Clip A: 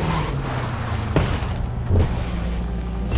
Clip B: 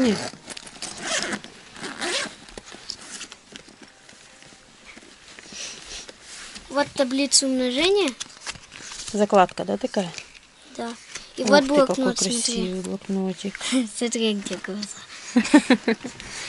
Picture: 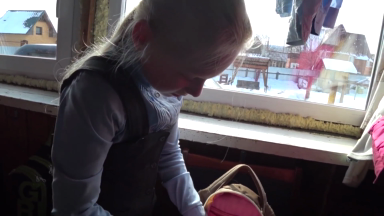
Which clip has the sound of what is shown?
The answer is B